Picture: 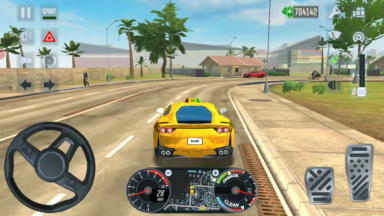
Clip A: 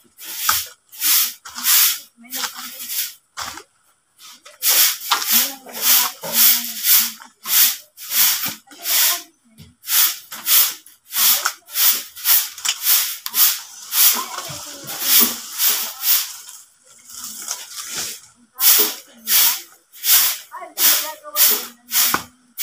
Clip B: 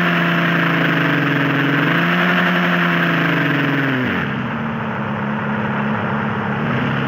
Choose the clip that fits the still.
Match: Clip B